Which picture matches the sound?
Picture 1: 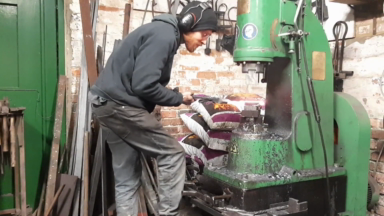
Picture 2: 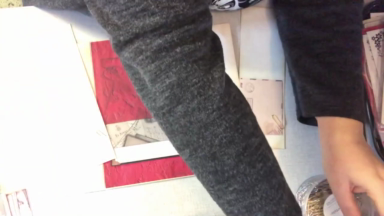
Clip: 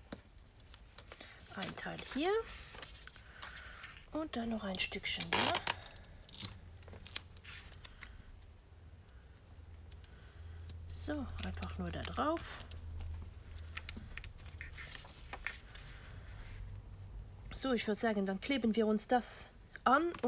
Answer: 2